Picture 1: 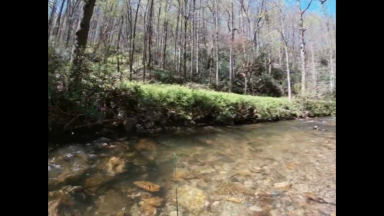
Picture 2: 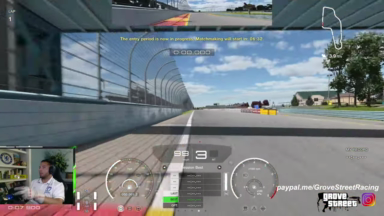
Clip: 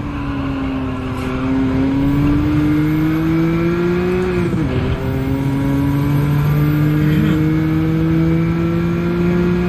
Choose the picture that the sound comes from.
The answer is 2